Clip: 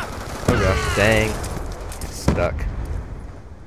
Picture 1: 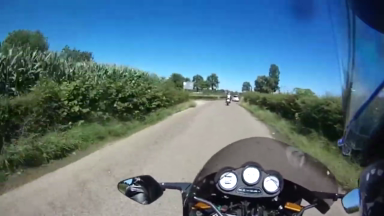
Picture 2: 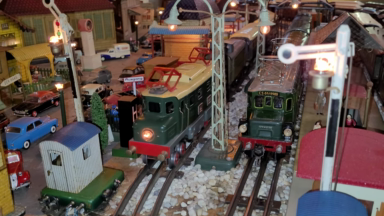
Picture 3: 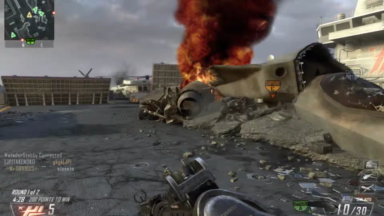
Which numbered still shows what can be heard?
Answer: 3